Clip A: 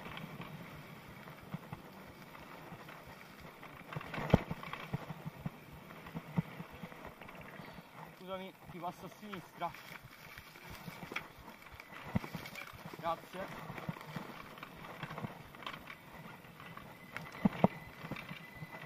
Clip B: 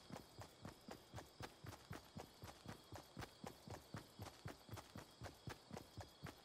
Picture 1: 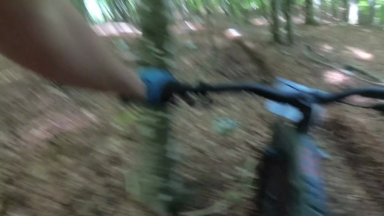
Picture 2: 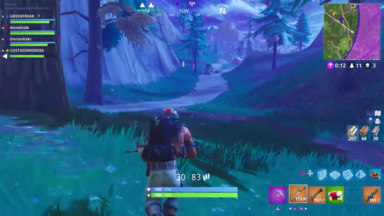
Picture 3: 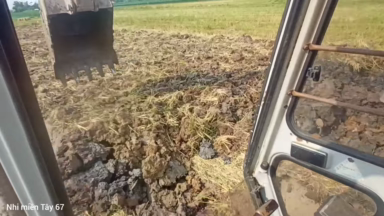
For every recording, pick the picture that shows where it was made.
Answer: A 1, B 2